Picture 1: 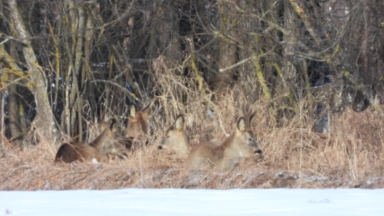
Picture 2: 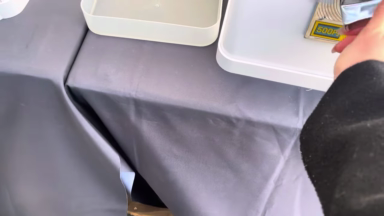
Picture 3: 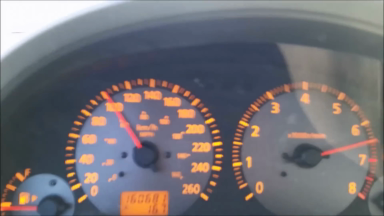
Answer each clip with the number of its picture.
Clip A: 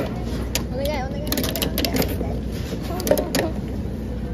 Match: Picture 2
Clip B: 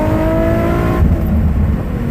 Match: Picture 3